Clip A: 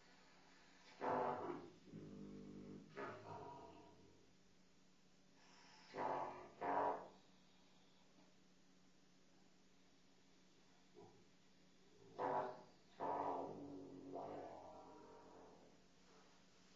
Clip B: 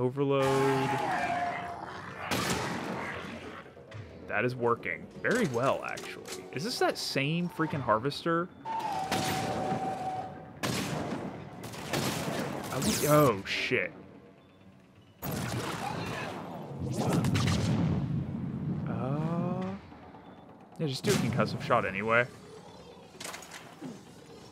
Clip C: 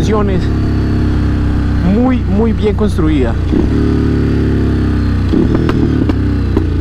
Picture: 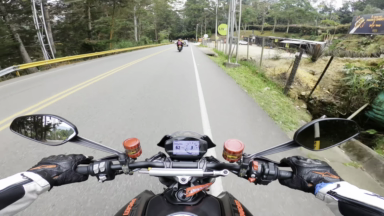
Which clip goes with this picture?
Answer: C